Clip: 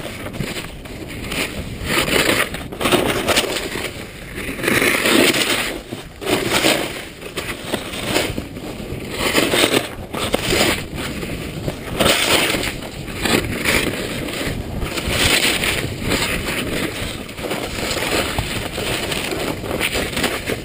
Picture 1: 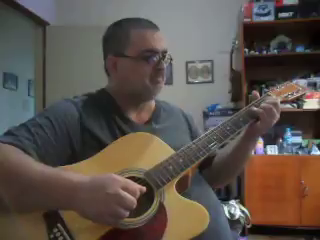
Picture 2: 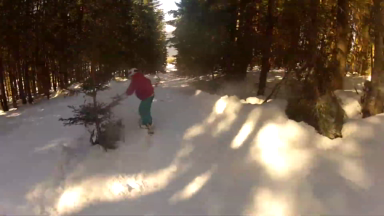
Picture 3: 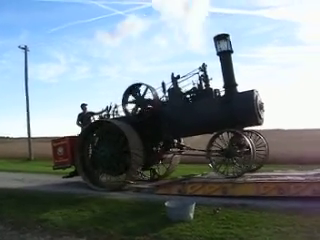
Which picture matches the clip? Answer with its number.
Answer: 2